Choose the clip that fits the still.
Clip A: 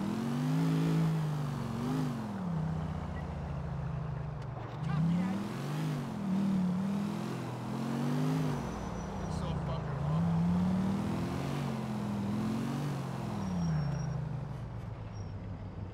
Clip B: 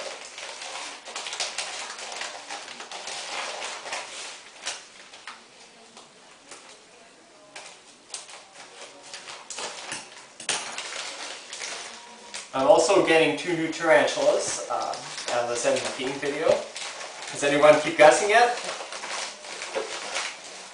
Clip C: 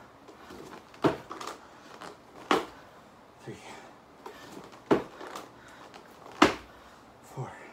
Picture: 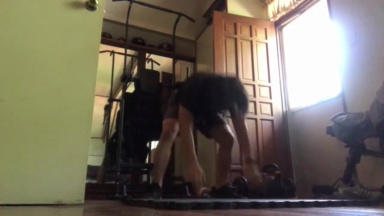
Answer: C